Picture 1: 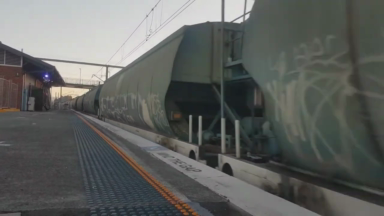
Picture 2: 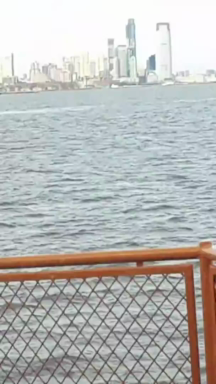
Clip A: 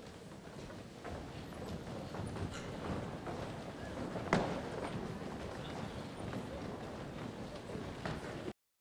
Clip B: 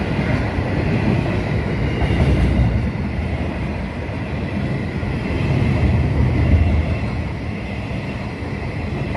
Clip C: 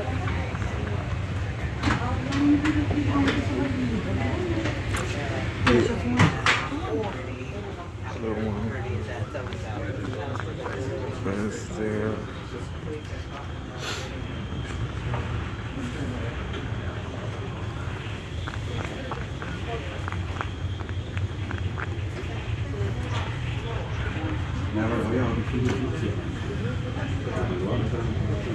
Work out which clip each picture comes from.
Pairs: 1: B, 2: C